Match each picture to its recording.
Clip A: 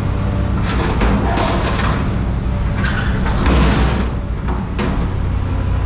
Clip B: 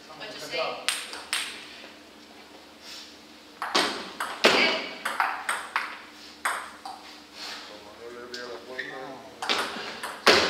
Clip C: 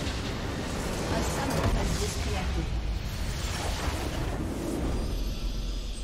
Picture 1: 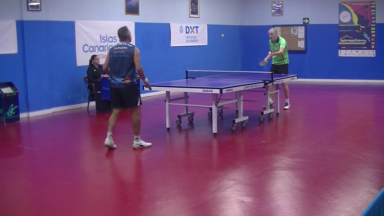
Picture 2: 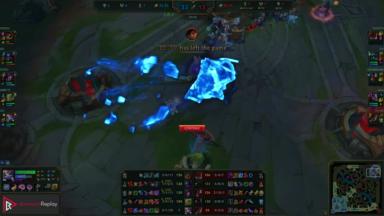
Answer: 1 B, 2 C